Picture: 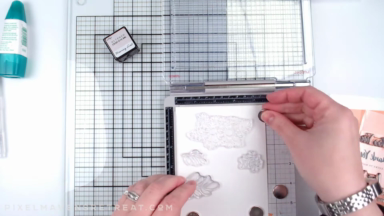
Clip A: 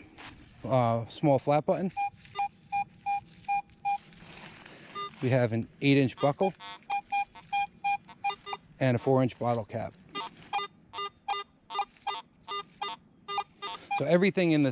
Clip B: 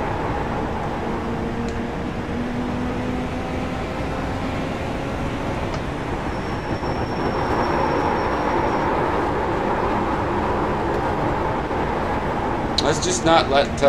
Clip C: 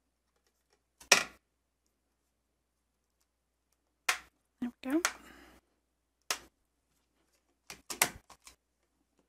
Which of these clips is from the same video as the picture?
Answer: C